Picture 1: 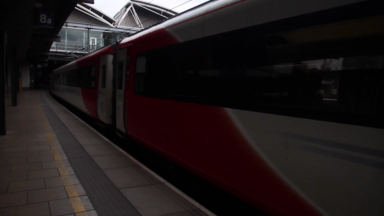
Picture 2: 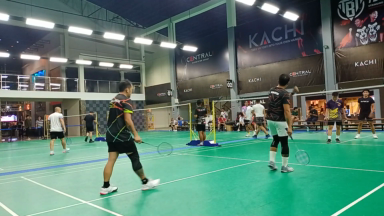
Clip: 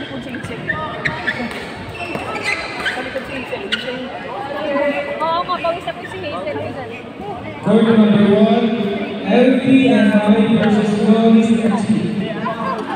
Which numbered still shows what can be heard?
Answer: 2